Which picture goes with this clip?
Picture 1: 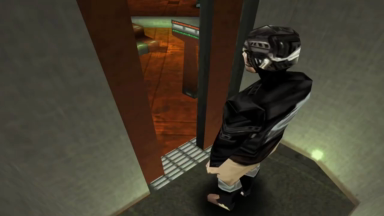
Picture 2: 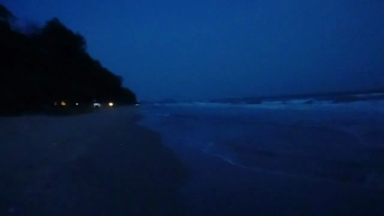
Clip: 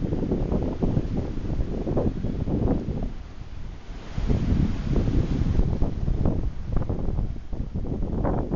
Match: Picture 2